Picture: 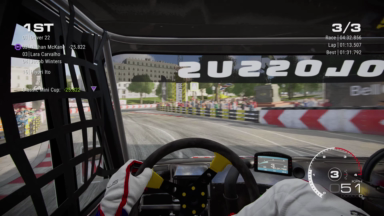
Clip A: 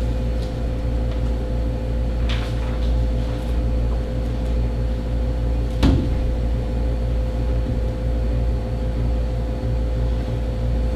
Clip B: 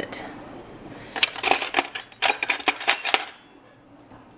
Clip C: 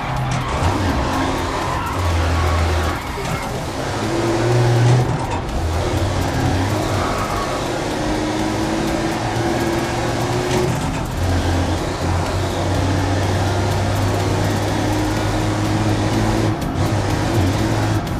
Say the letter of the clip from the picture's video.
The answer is C